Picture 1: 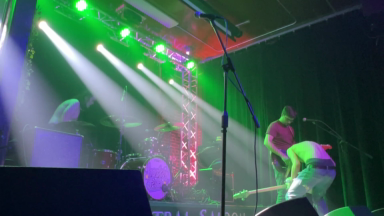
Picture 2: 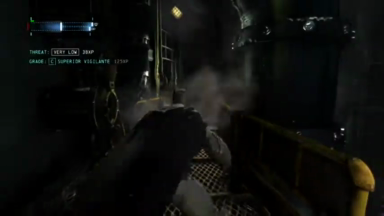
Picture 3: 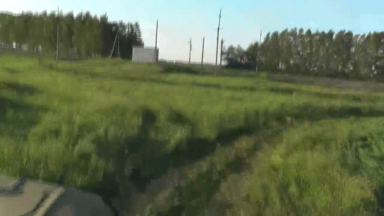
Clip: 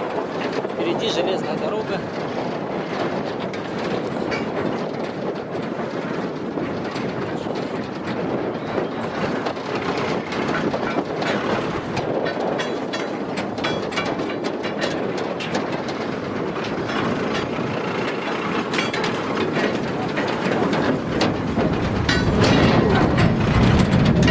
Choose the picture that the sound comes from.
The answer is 3